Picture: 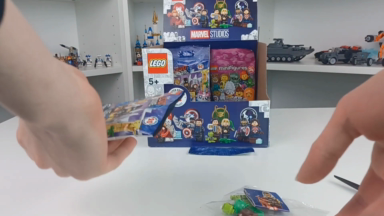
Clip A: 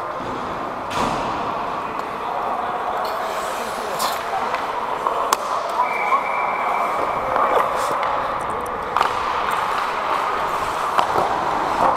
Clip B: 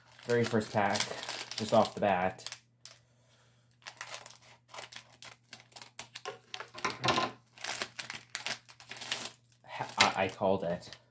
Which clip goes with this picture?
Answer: B